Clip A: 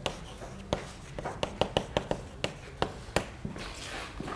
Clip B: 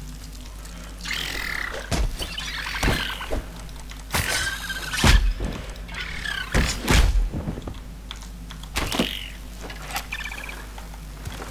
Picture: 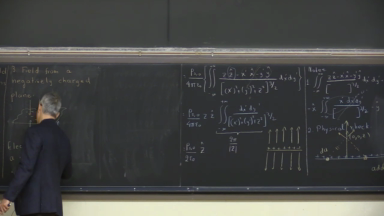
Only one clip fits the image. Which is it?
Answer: A